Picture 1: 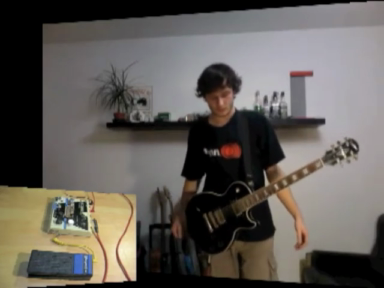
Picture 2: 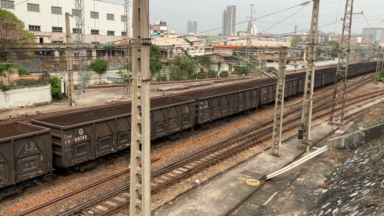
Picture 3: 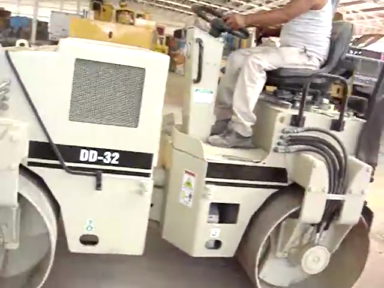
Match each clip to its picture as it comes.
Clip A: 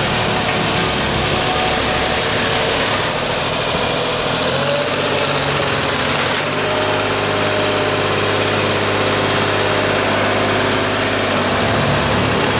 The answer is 3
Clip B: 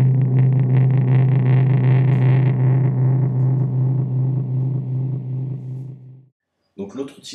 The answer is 1